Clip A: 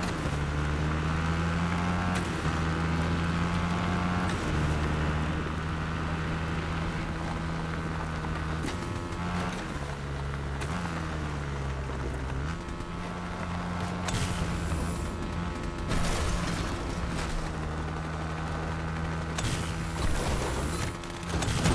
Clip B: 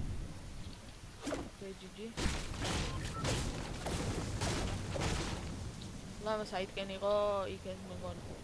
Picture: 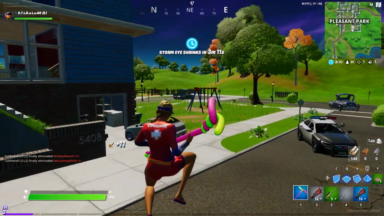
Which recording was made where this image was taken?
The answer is B